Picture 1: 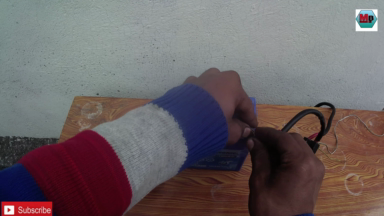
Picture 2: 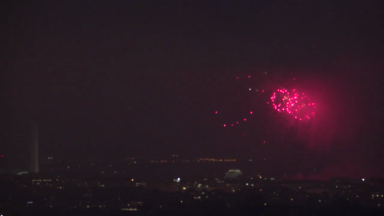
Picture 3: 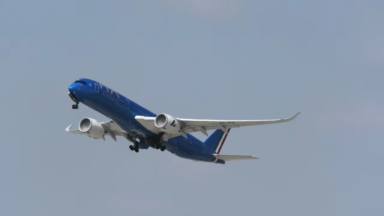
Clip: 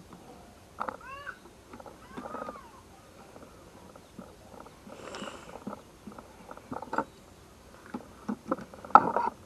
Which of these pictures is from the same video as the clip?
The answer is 1